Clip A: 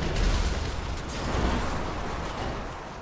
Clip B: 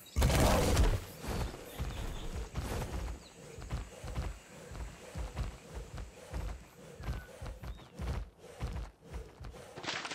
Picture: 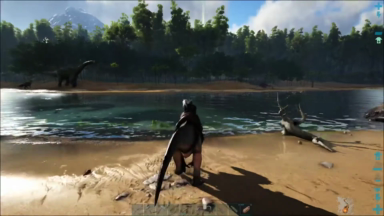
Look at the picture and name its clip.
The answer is B